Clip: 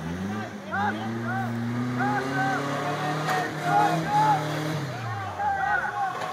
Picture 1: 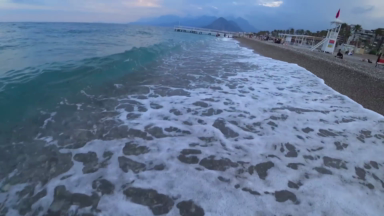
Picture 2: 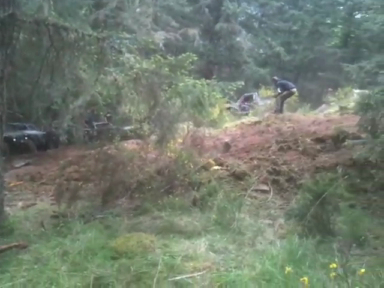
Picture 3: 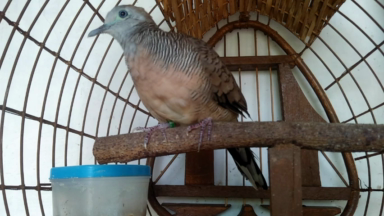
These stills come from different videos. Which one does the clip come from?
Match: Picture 2